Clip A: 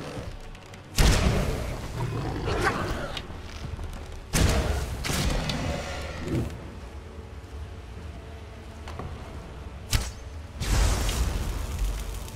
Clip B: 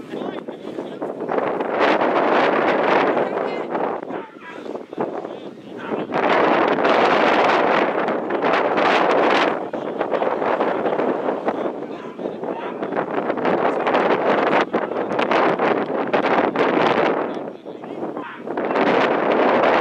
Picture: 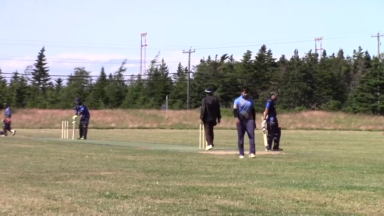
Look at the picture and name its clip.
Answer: B